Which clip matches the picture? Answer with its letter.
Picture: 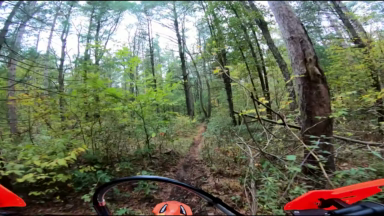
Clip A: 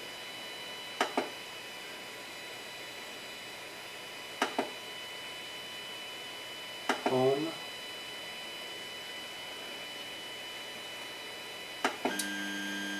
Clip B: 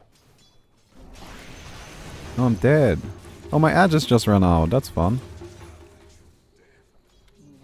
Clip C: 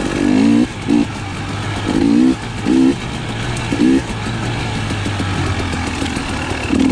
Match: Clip C